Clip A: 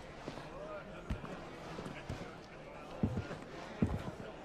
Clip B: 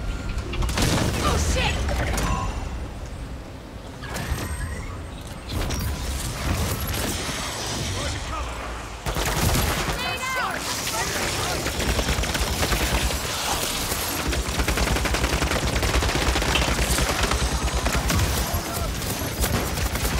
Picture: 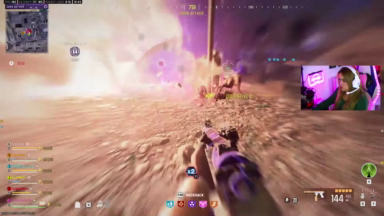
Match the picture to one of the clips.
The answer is B